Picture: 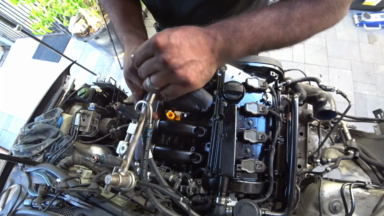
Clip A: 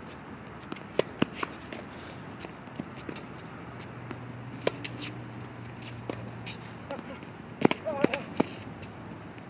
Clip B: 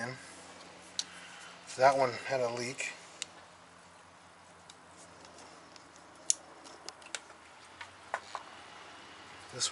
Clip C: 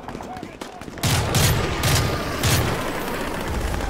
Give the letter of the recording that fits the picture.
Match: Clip B